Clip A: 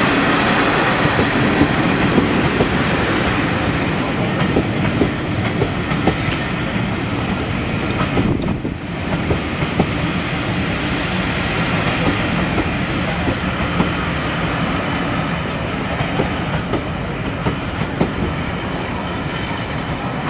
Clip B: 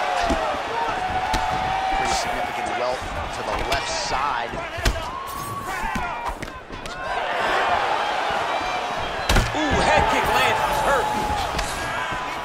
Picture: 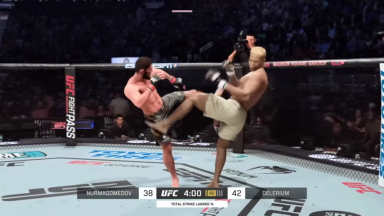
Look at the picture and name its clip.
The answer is B